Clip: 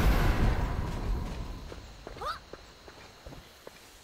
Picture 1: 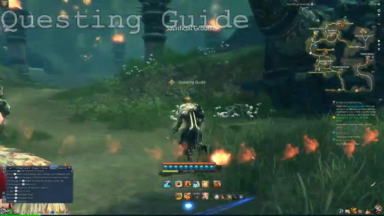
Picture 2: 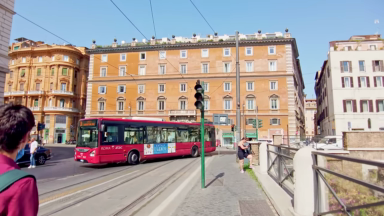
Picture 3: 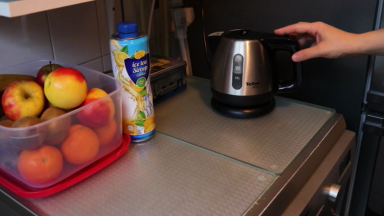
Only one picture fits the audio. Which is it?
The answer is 1